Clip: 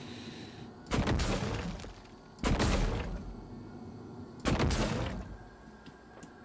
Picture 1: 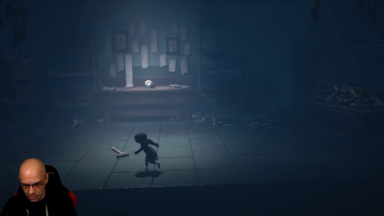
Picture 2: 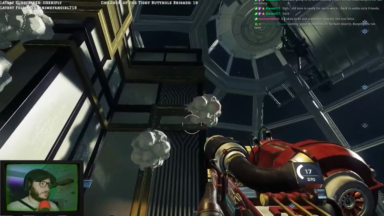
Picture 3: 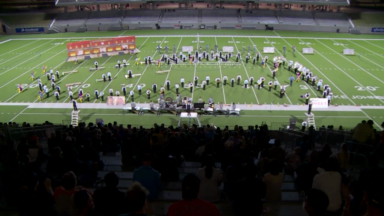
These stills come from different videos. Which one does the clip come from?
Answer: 2